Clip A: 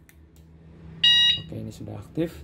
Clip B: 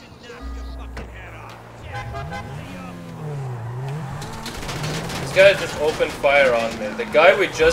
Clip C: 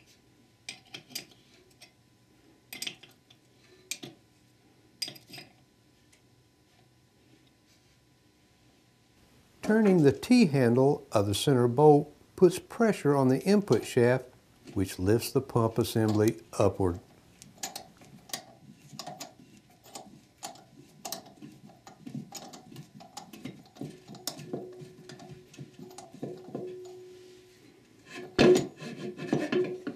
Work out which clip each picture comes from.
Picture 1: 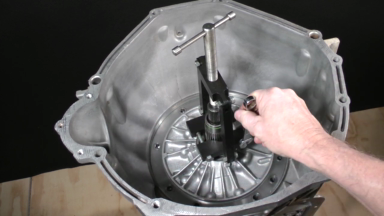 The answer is C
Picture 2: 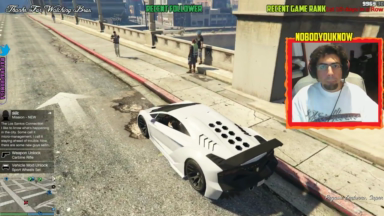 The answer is B